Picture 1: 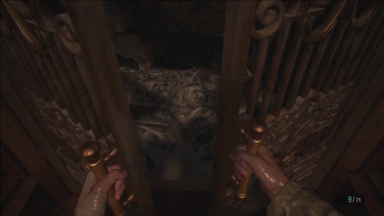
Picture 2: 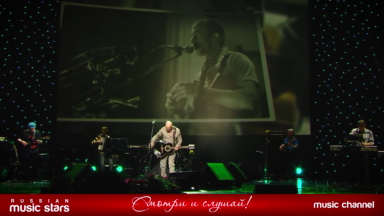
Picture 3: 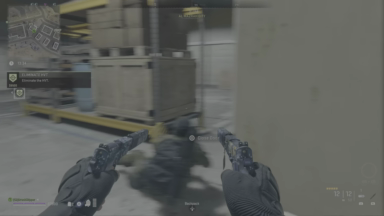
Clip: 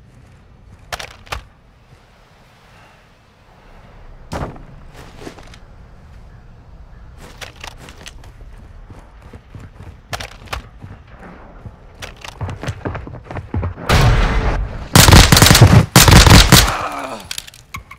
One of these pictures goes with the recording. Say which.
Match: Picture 3